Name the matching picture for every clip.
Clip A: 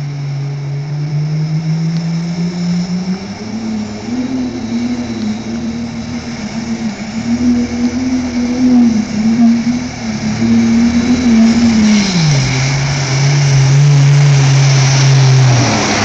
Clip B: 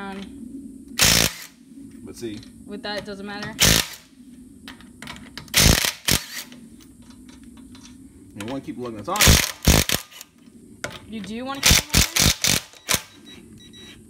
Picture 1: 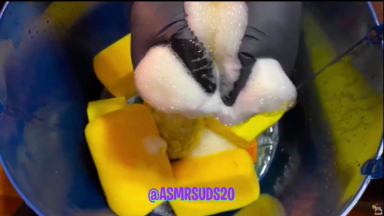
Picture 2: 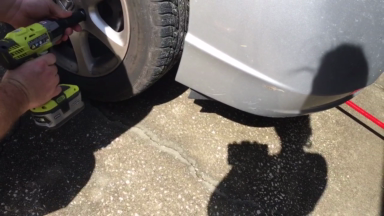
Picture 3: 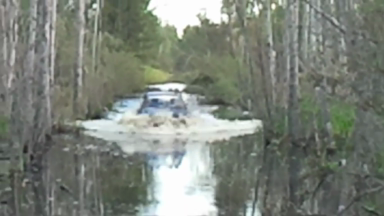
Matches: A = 3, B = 2